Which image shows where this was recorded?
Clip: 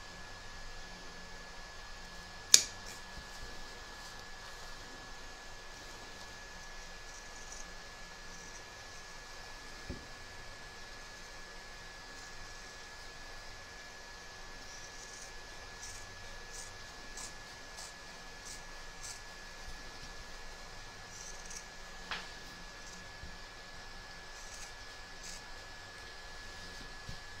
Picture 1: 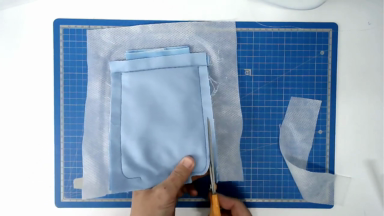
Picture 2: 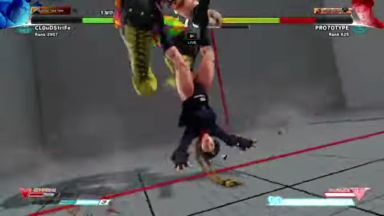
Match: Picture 1